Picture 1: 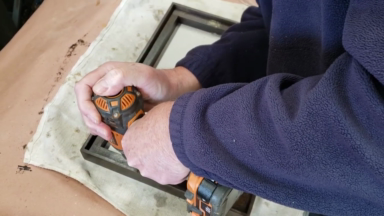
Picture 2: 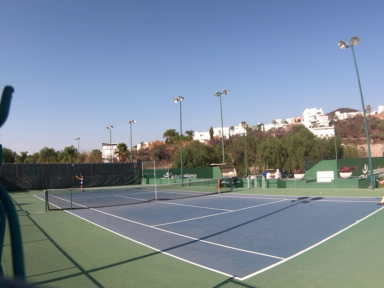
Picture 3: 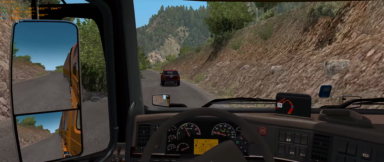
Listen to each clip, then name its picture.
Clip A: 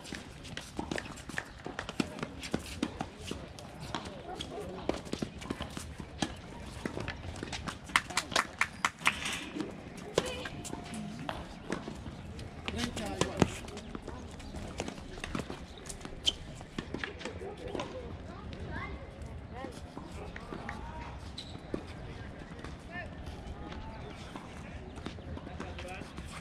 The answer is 2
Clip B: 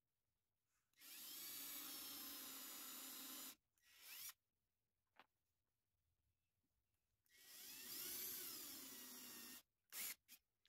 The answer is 1